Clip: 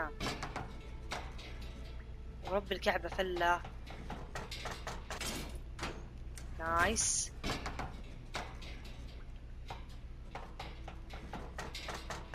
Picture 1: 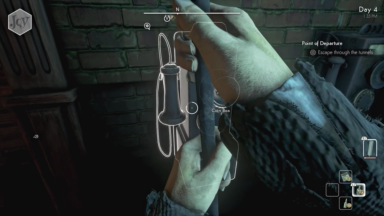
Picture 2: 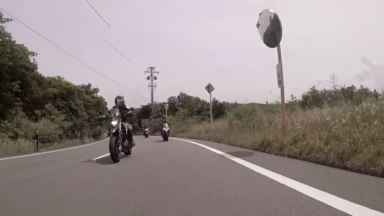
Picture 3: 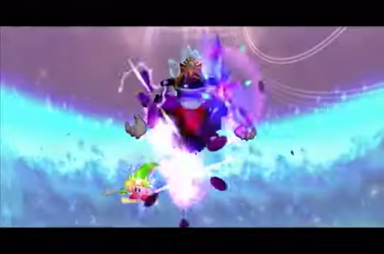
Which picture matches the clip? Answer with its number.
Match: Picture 1